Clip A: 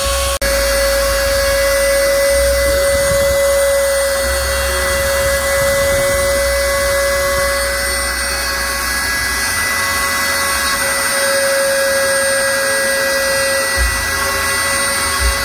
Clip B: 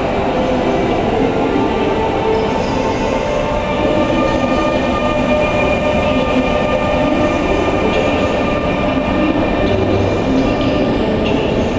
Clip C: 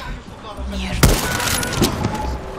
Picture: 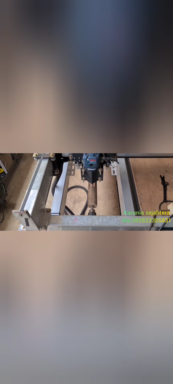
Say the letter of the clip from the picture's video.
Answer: A